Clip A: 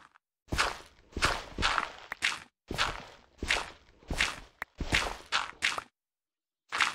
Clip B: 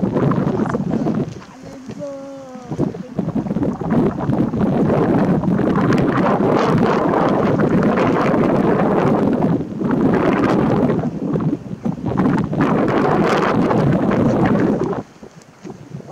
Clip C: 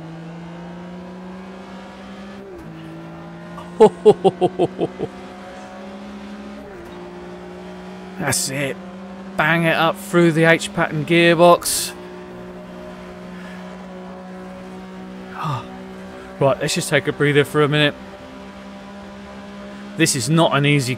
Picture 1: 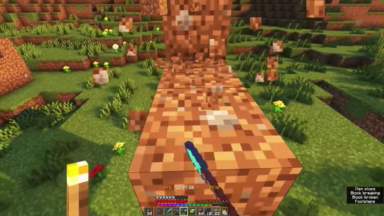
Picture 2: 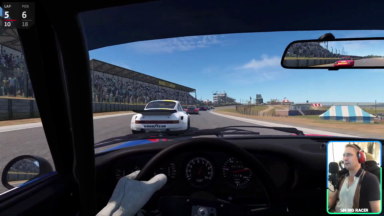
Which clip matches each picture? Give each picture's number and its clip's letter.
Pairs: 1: A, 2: C